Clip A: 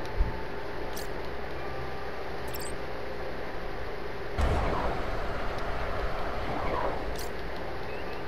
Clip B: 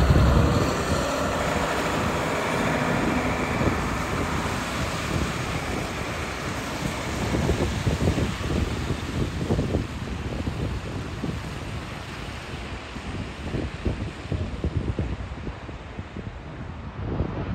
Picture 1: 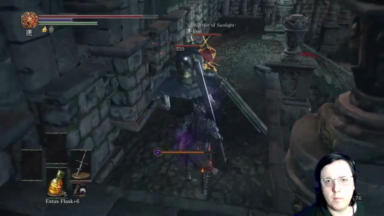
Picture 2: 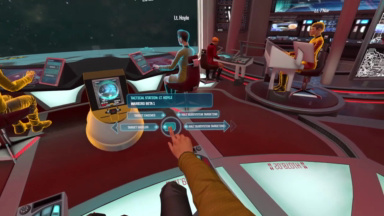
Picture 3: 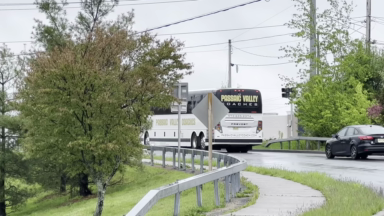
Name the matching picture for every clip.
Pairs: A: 2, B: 3